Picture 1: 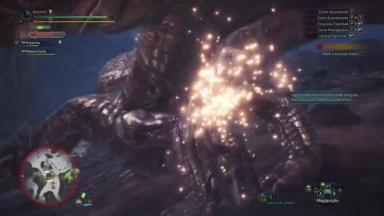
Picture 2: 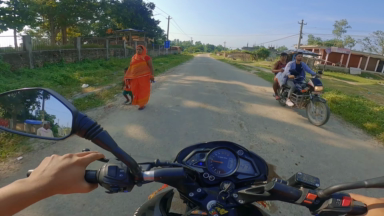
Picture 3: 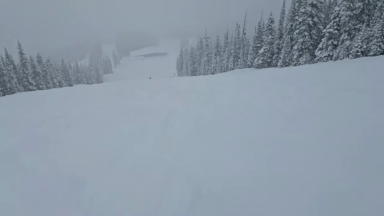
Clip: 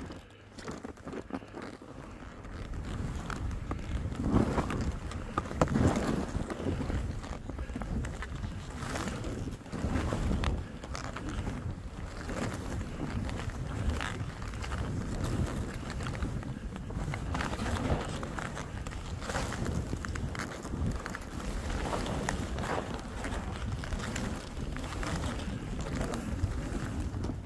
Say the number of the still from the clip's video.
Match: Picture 3